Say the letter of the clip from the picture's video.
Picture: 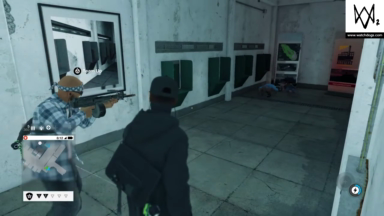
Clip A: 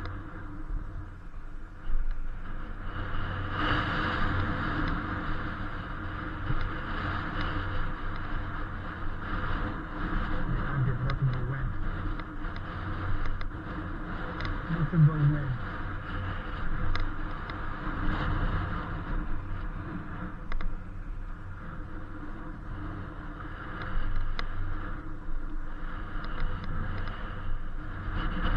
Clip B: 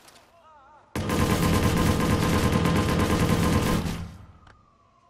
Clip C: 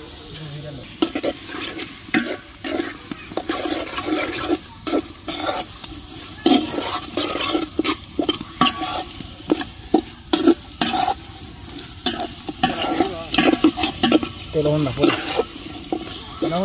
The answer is B